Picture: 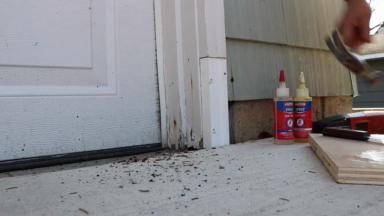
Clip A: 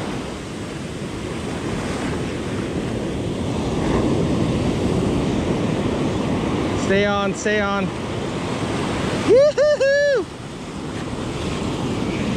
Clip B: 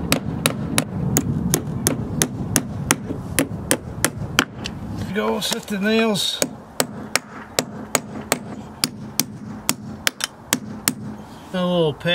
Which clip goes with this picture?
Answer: B